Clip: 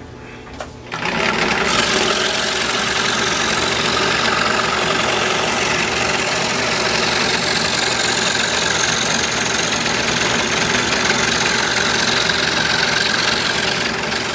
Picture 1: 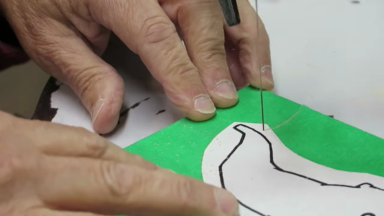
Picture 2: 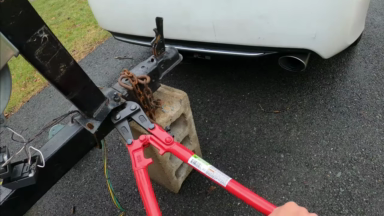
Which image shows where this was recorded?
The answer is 1